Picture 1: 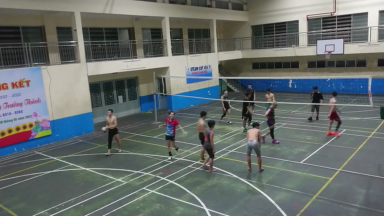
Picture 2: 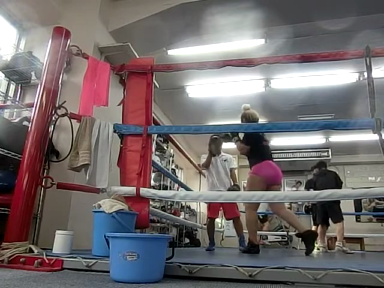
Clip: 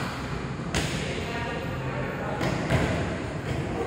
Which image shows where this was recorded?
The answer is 1